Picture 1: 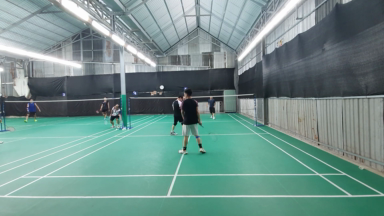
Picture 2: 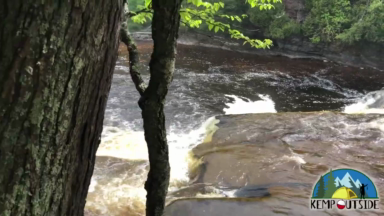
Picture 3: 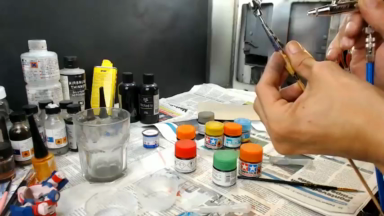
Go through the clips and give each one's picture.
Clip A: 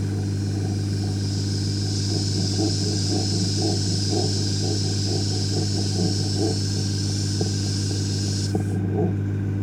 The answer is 3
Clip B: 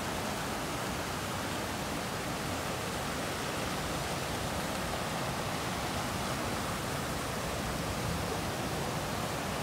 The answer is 2